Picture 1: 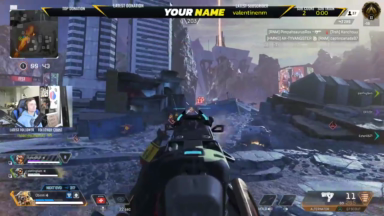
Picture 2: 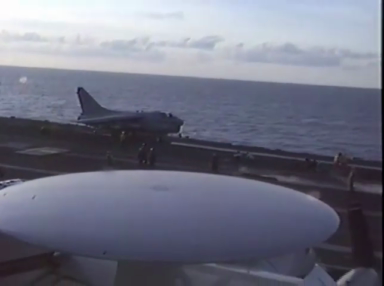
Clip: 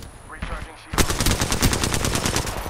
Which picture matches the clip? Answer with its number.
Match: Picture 1